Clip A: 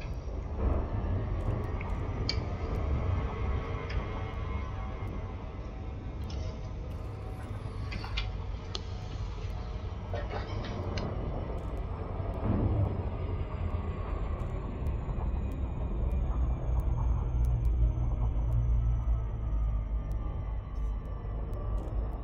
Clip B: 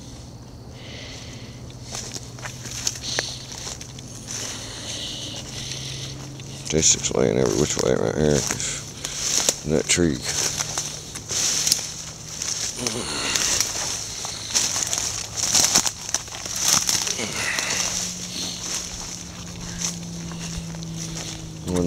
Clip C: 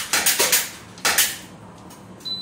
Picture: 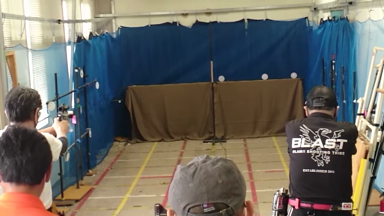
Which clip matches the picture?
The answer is C